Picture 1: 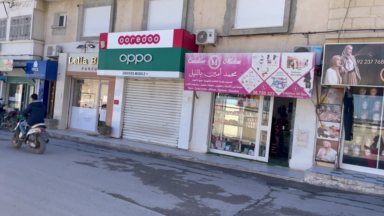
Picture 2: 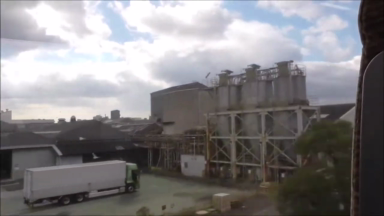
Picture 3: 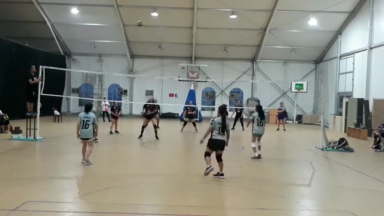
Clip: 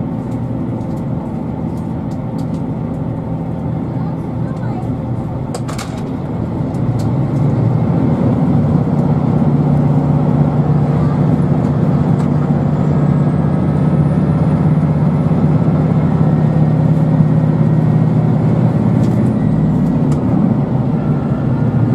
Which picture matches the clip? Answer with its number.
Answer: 2